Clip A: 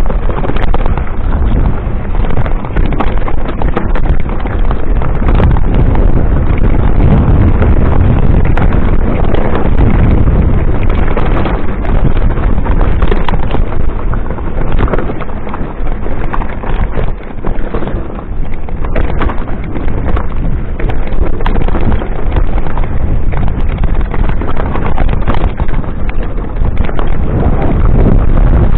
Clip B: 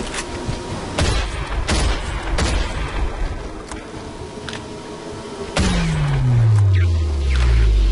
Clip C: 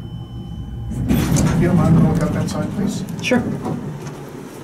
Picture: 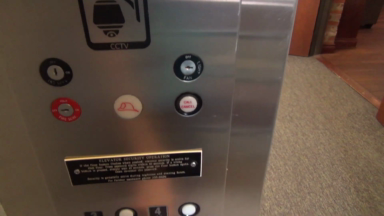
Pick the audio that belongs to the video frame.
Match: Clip C